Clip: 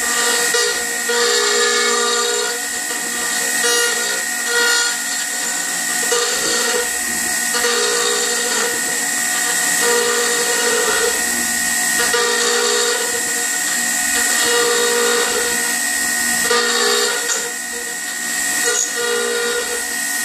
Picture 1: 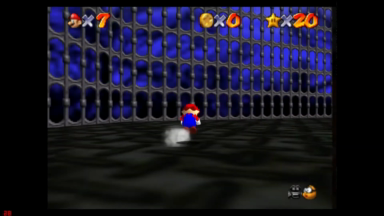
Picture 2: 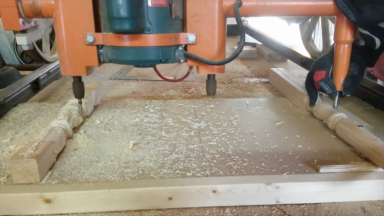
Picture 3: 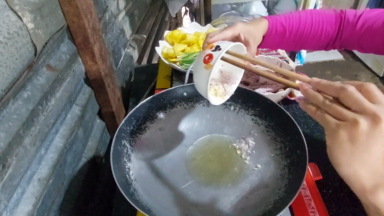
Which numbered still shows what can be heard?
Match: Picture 2